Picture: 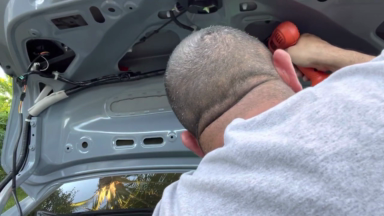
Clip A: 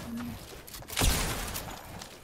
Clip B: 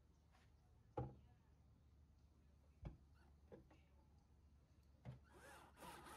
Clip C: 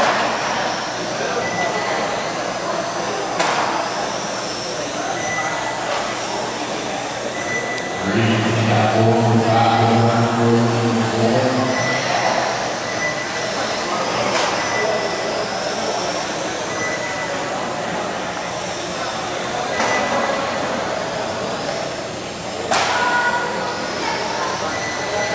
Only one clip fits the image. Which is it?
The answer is B